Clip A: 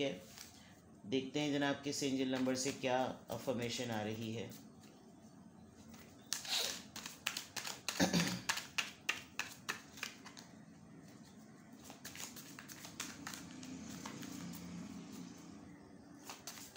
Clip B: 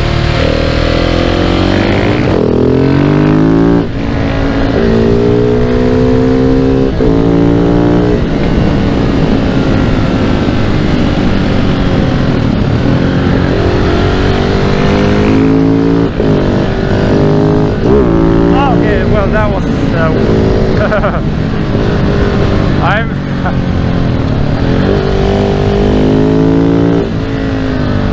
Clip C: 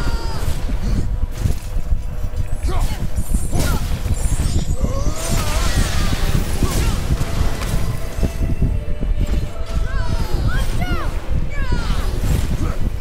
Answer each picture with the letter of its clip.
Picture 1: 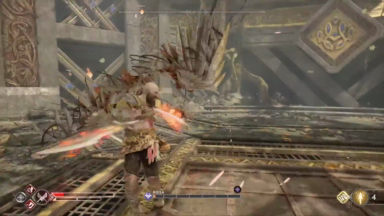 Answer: C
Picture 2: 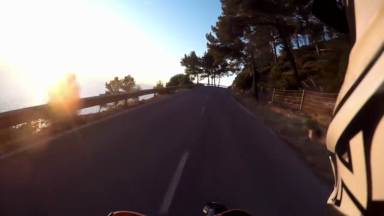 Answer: B